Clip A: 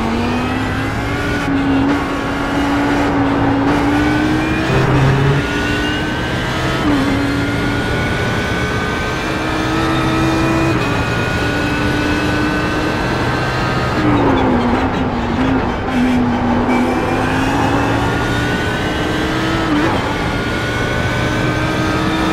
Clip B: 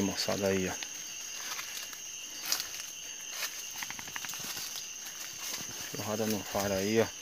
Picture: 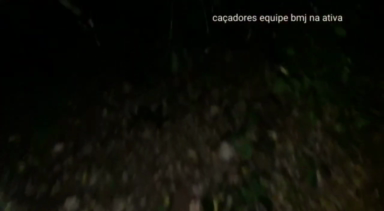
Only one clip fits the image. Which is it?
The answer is B